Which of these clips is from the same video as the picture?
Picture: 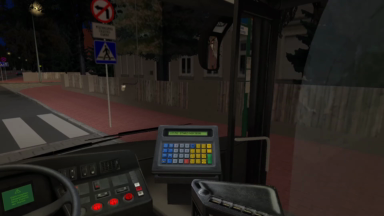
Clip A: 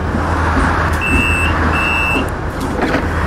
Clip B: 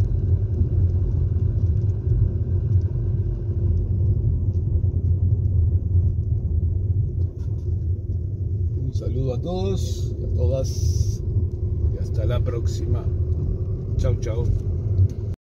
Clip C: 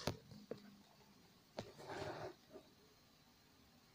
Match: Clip A